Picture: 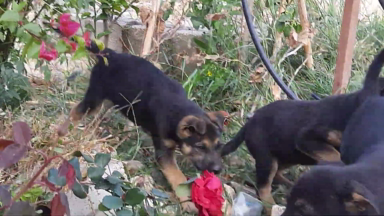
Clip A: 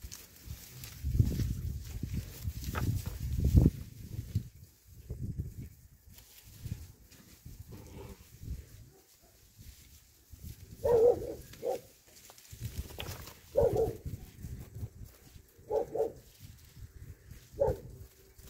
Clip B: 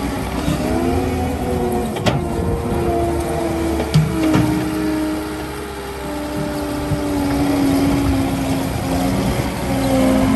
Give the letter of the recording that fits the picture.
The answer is A